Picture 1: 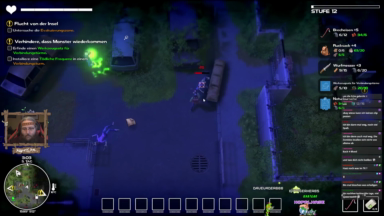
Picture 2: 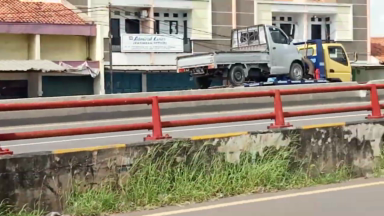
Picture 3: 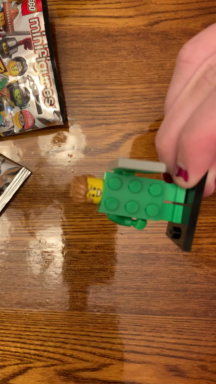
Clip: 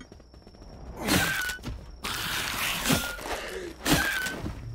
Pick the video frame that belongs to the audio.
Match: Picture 1